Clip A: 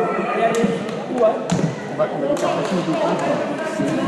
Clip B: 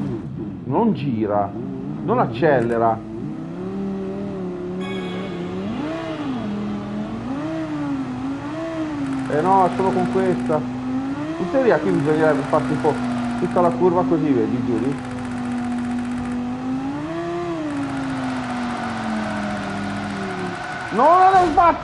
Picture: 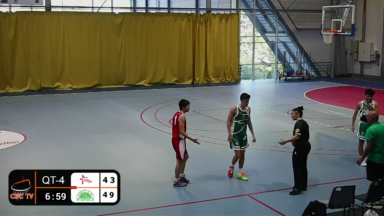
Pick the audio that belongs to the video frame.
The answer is A